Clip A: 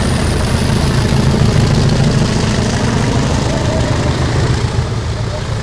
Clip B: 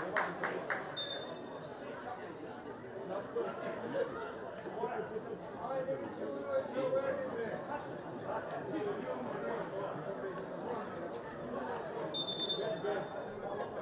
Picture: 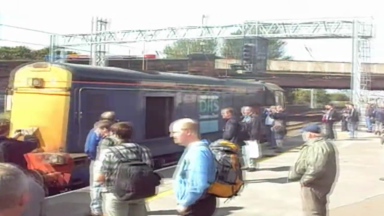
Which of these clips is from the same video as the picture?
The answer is A